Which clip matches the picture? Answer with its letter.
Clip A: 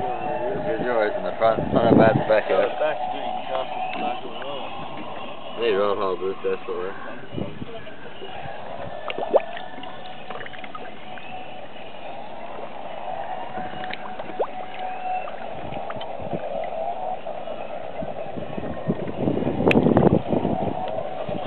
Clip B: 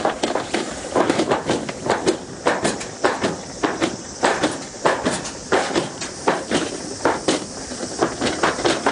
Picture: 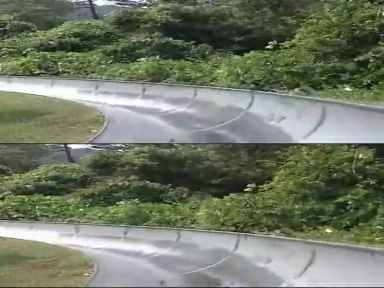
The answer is B